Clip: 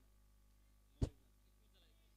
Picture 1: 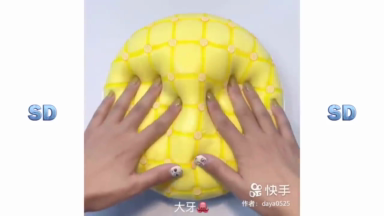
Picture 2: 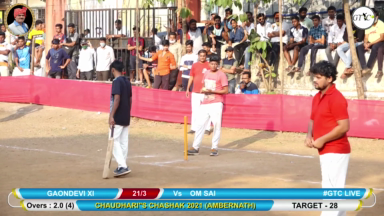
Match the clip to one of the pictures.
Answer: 2